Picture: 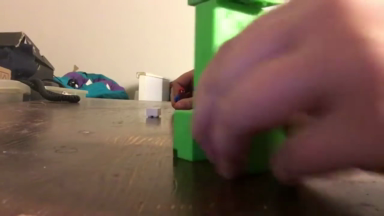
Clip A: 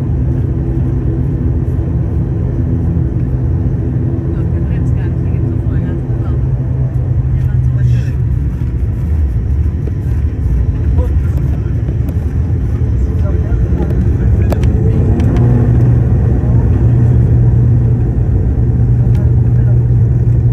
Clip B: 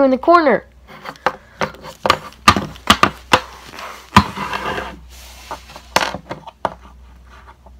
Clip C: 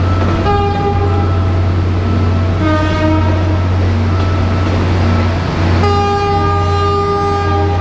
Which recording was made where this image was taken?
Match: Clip B